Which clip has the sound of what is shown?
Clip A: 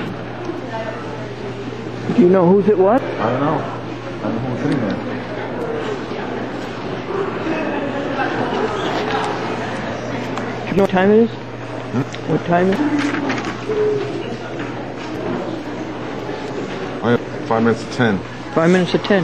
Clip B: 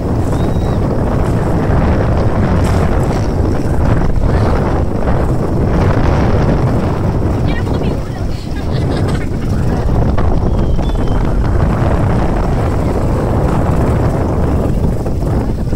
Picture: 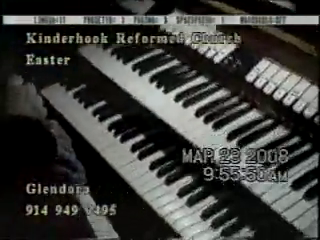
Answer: A